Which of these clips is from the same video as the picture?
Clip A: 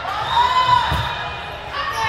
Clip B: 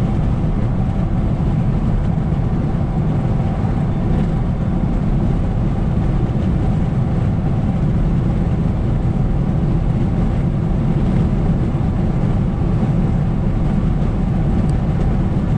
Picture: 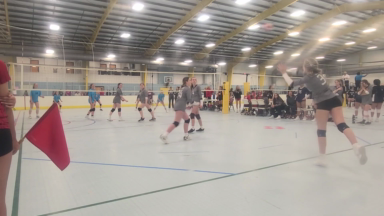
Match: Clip A